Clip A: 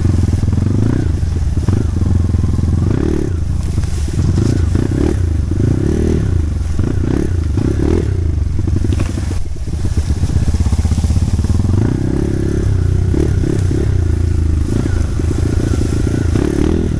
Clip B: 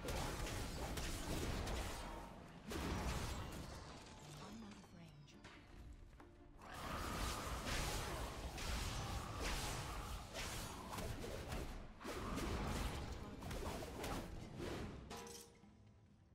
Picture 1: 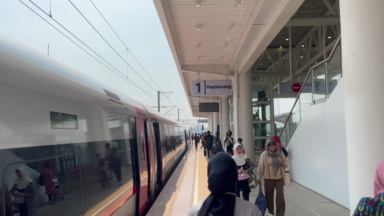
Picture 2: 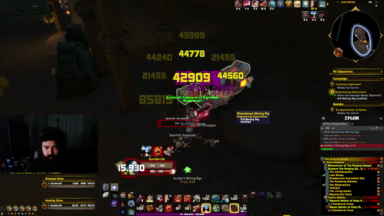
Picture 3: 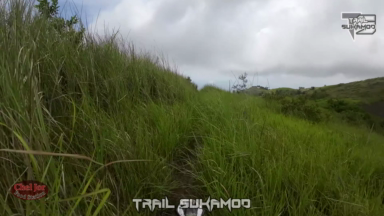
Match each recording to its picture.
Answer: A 3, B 2